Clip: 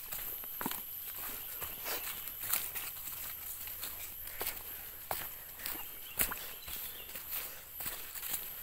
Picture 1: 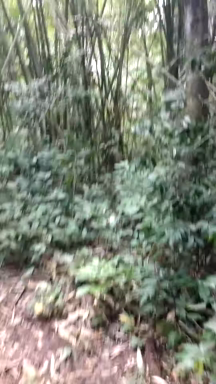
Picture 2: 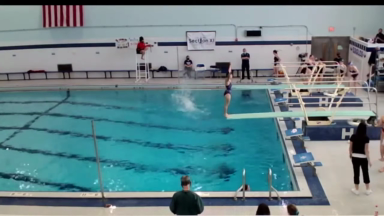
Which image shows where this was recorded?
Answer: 1